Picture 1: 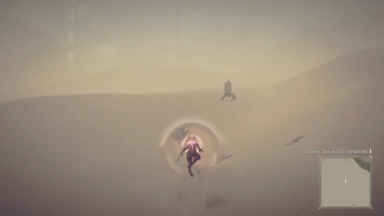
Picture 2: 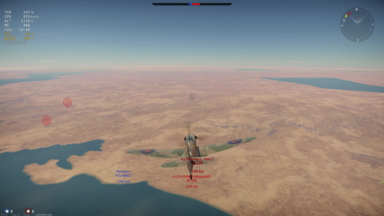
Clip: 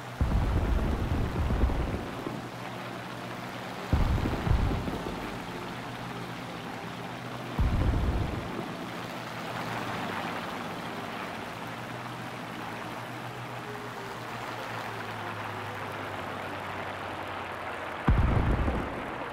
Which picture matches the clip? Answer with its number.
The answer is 2